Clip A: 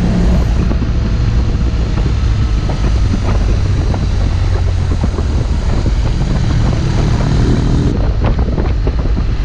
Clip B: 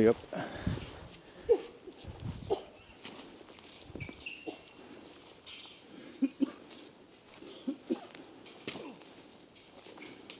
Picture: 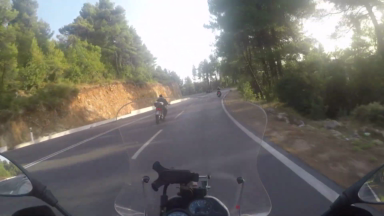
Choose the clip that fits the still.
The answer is A